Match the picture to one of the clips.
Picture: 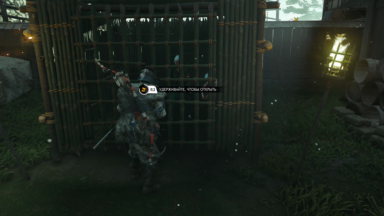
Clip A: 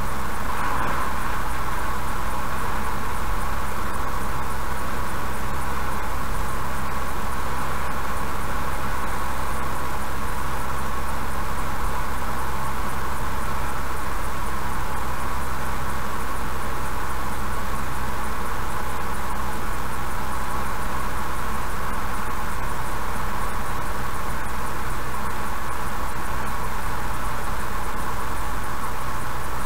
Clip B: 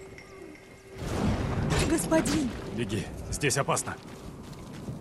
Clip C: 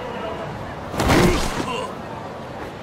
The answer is B